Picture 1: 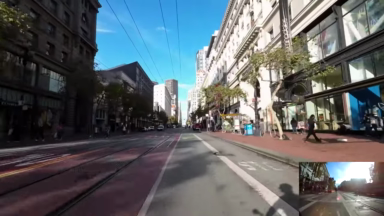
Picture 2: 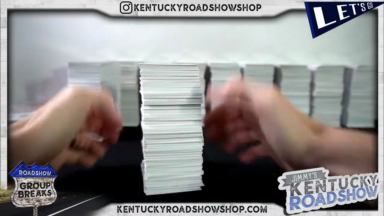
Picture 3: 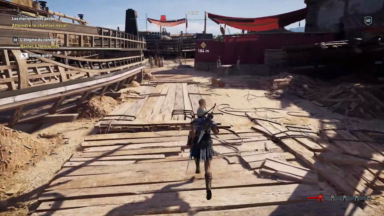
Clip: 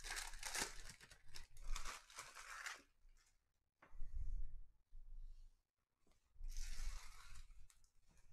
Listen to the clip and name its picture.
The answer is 2